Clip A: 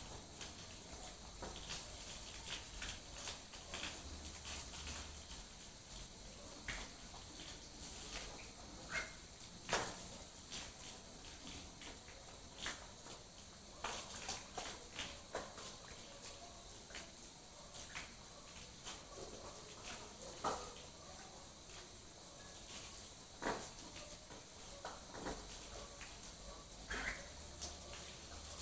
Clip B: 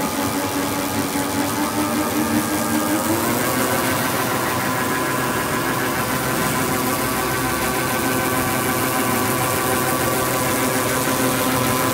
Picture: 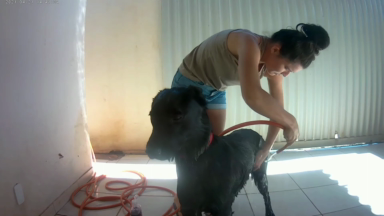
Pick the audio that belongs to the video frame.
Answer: A